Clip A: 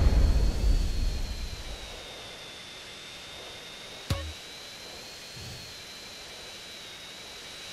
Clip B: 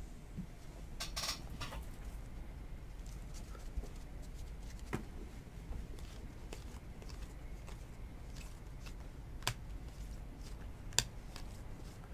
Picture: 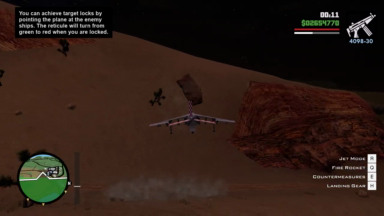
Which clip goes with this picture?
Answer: A